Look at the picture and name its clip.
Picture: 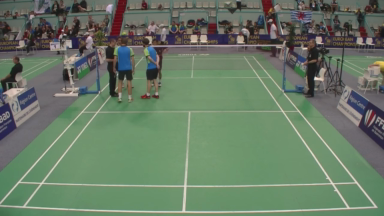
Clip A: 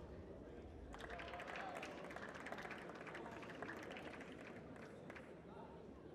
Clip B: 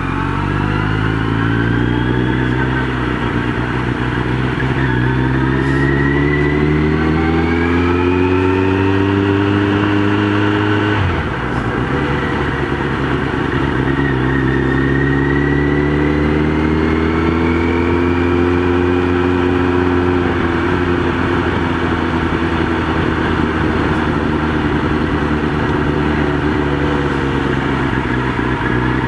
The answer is A